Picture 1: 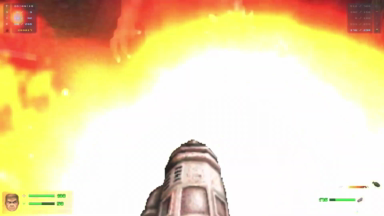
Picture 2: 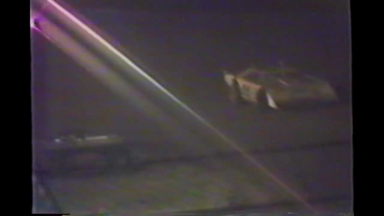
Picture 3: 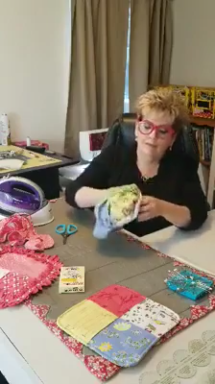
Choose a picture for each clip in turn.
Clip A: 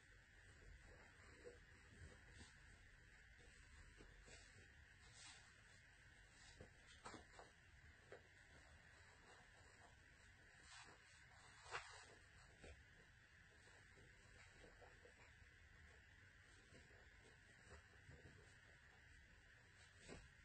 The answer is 3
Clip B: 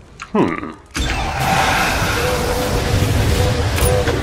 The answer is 1